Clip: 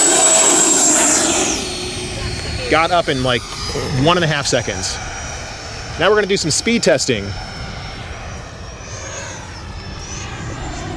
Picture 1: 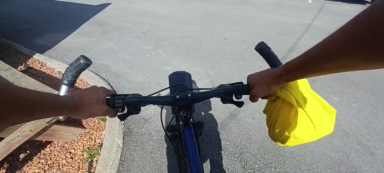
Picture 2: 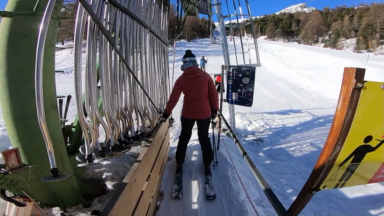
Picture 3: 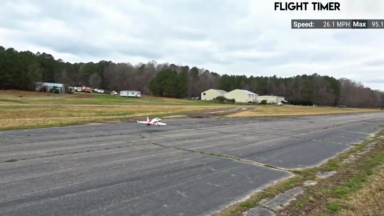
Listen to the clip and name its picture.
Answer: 3